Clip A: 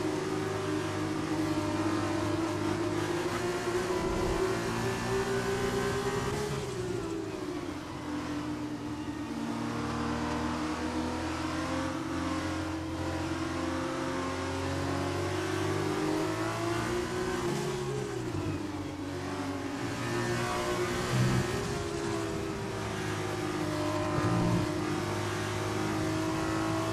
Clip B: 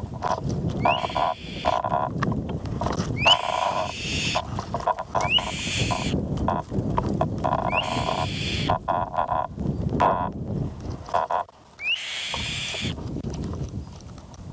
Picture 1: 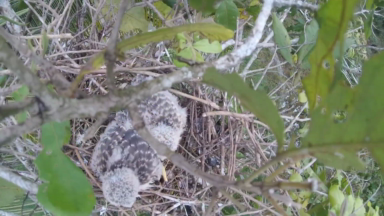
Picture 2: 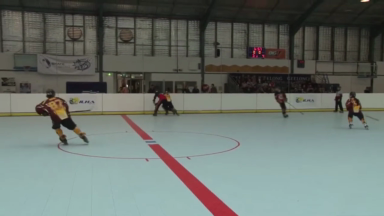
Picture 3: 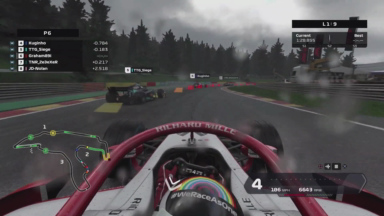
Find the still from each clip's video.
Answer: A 3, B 1